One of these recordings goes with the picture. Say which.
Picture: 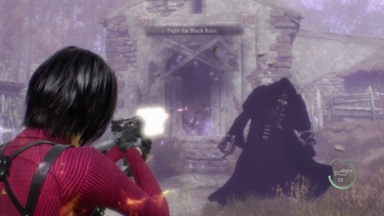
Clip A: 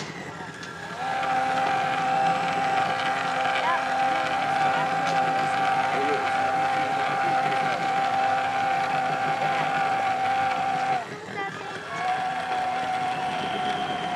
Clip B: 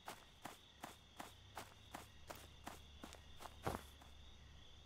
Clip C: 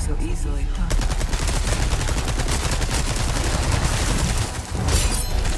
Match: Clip C